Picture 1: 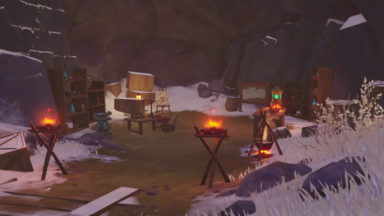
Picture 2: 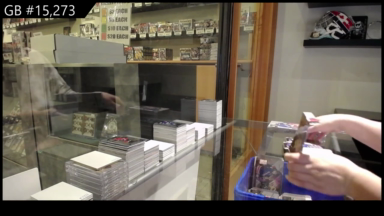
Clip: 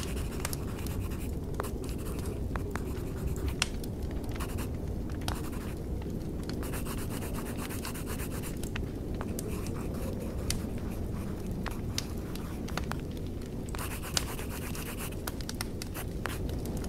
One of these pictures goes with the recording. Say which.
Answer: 1